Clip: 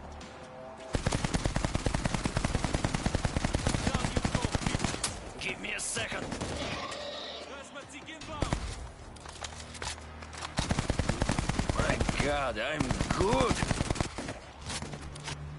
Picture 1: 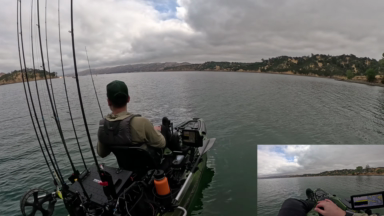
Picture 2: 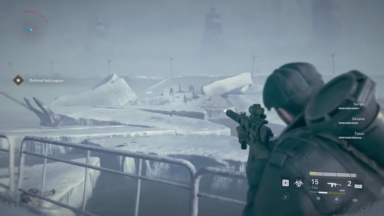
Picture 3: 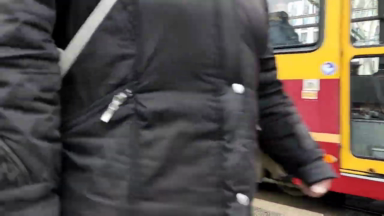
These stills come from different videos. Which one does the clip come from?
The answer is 2